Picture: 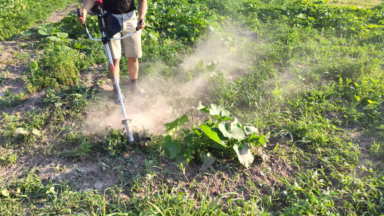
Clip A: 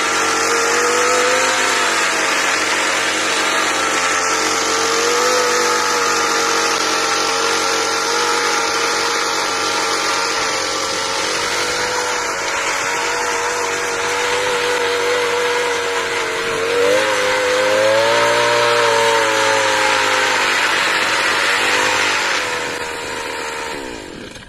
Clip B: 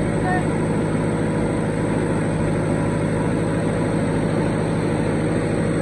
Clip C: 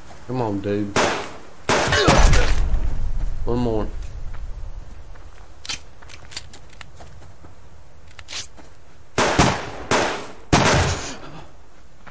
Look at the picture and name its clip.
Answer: A